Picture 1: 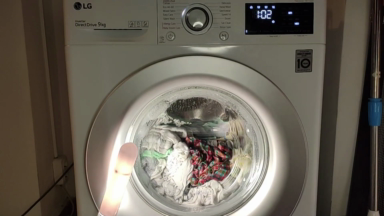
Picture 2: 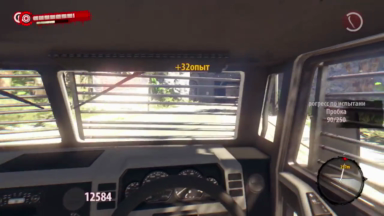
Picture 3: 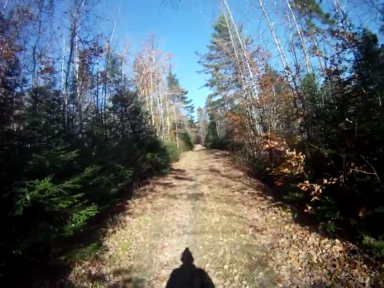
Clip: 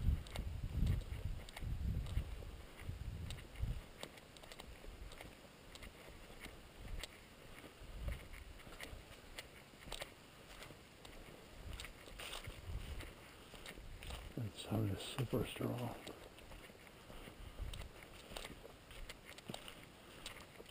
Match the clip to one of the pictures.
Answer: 3